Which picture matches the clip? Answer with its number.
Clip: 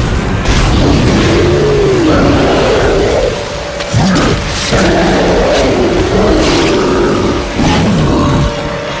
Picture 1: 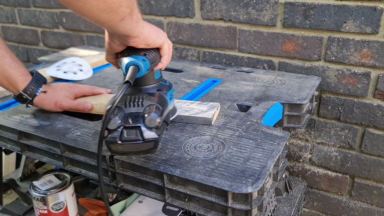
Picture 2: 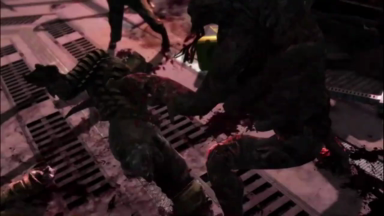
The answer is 2